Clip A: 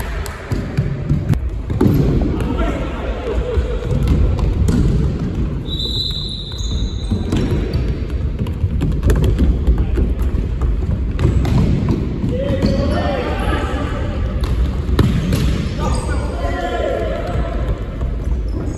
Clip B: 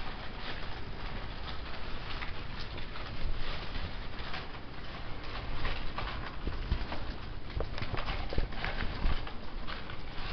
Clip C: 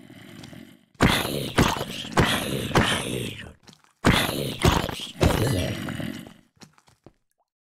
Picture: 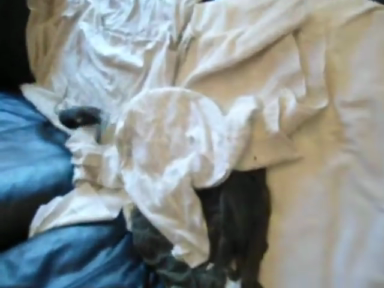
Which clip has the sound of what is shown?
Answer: B